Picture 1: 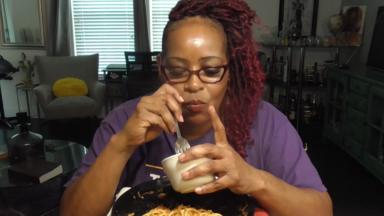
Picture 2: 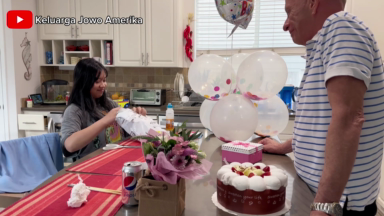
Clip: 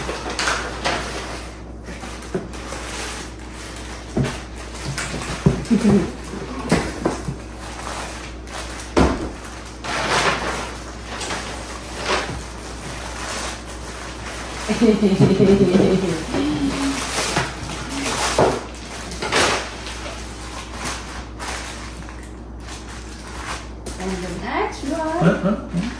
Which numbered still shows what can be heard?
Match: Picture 2